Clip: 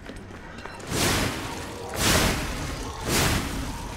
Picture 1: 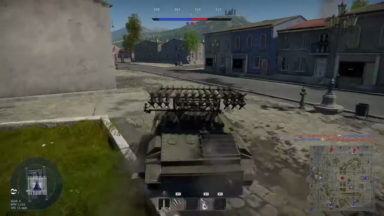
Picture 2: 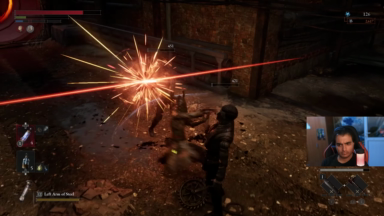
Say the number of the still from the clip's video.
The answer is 2